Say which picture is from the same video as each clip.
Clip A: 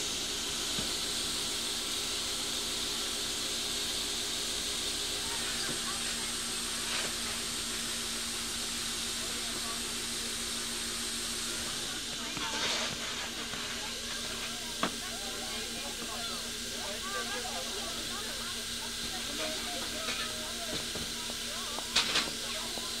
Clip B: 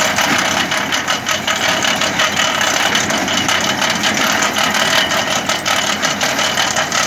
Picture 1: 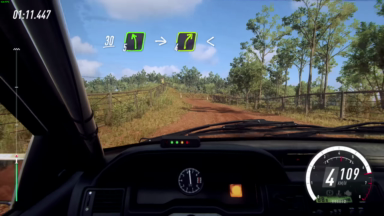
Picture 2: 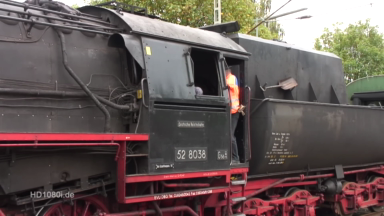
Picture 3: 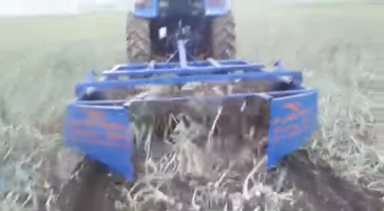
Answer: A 2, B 3